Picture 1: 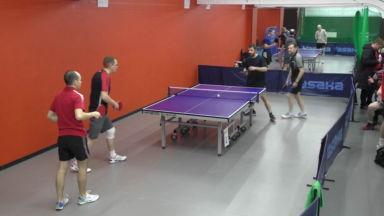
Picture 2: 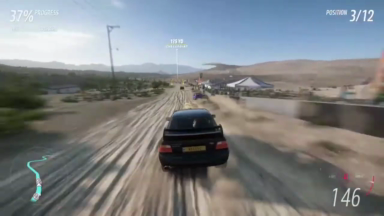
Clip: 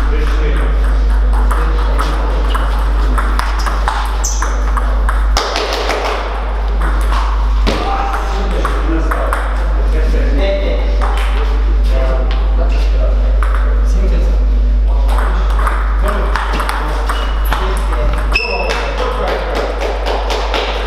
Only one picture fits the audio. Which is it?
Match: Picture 1